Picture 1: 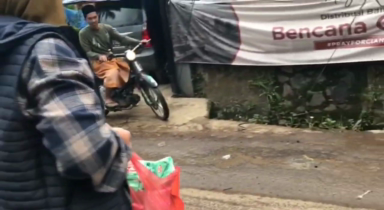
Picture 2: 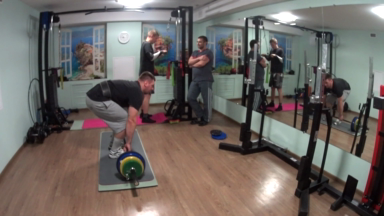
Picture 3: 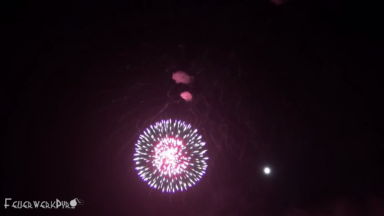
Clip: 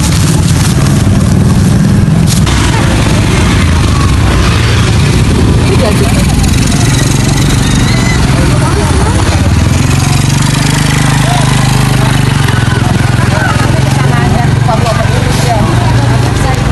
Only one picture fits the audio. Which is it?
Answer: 1